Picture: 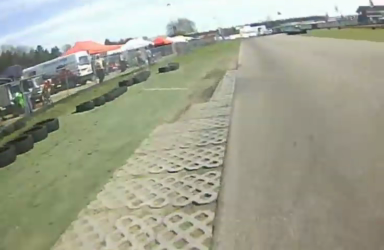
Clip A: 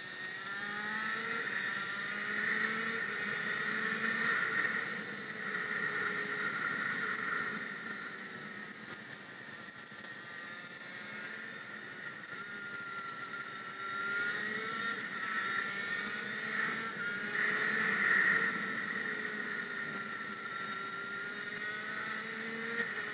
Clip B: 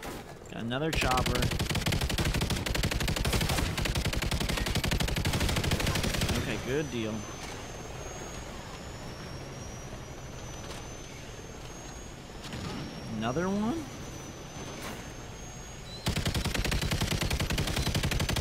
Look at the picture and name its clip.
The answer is A